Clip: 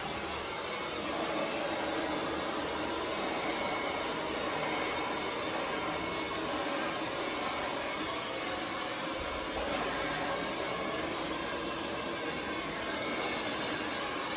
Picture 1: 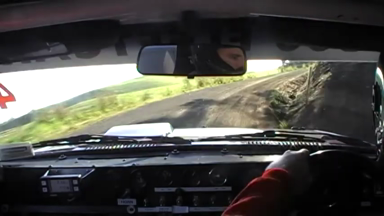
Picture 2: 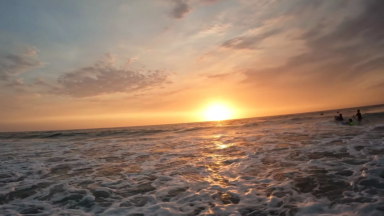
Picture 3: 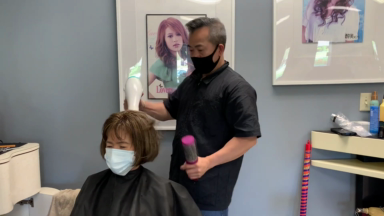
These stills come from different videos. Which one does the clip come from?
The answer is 3